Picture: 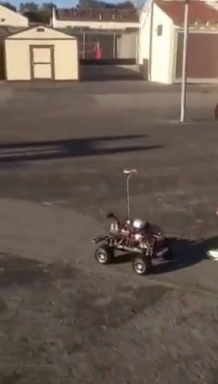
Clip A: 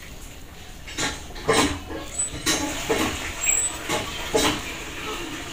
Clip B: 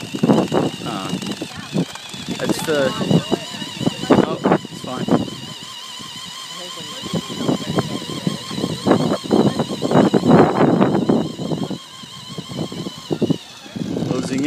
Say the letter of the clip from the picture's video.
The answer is B